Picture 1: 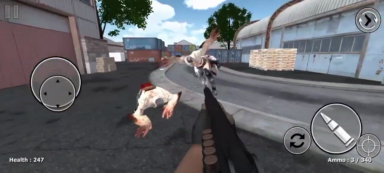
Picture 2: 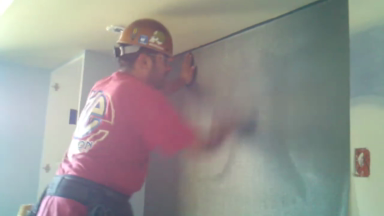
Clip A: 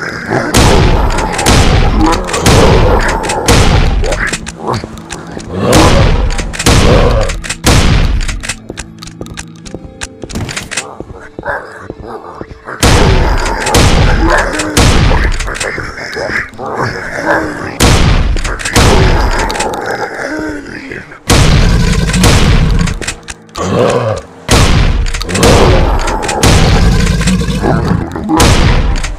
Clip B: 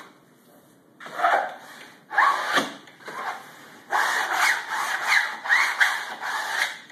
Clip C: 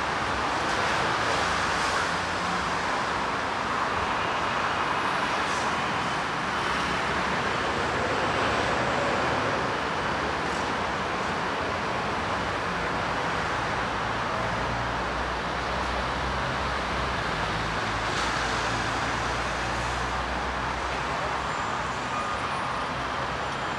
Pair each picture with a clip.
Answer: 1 A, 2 B